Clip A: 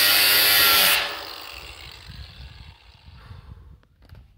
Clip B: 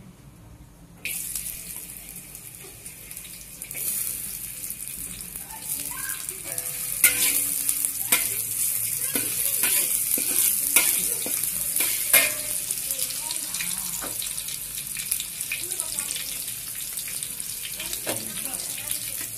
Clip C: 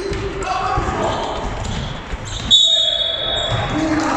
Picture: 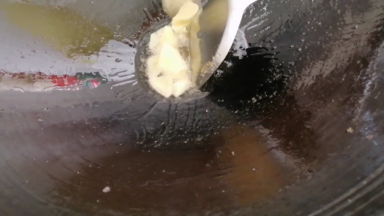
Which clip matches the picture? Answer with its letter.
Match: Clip B